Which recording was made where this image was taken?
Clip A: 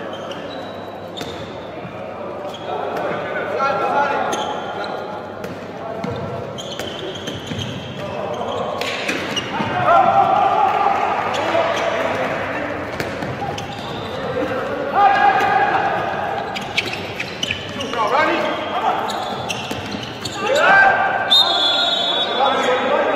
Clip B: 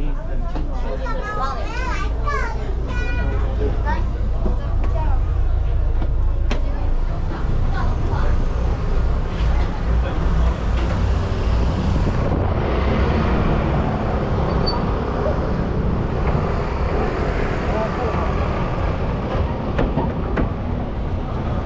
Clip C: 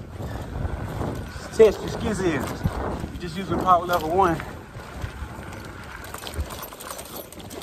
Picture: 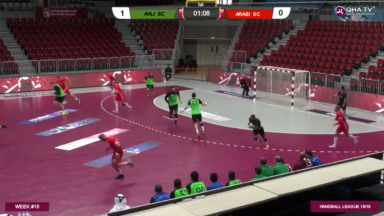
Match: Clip A